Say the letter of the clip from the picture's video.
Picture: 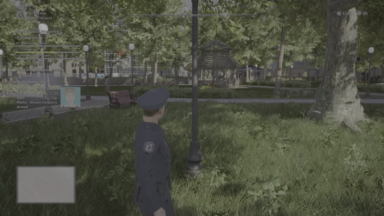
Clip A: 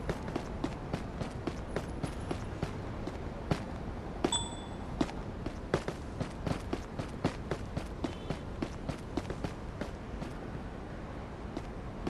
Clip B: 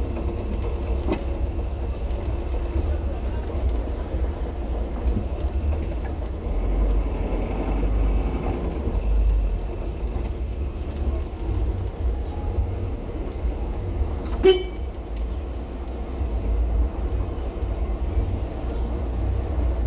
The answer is A